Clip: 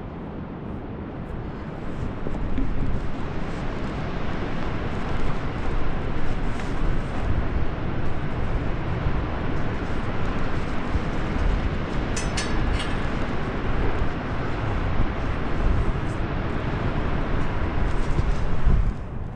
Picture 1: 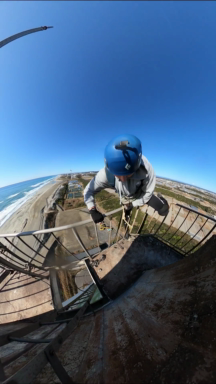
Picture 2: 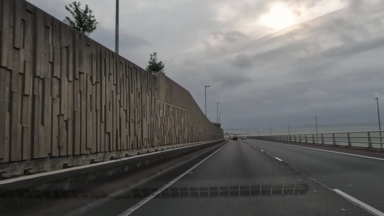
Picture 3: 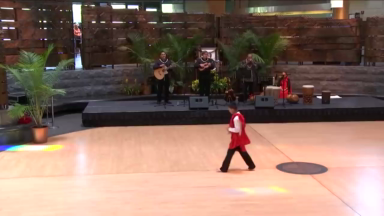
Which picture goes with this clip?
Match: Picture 1